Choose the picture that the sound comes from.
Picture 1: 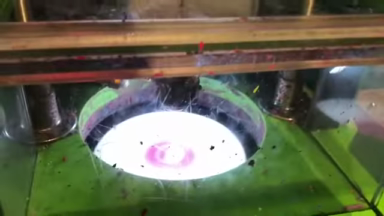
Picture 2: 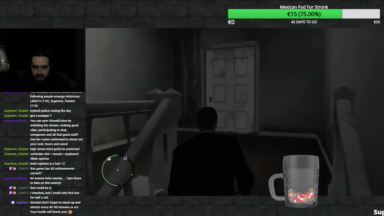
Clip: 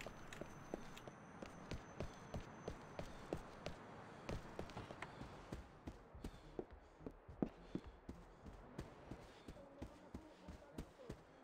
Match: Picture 2